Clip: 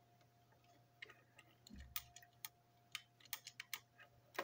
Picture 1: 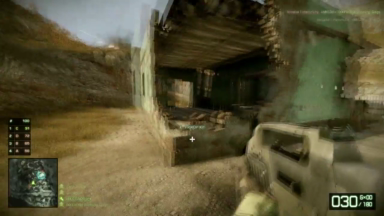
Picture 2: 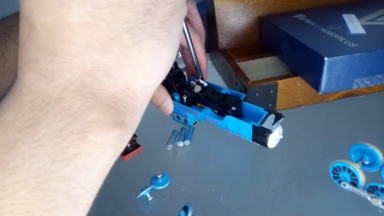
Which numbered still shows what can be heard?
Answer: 2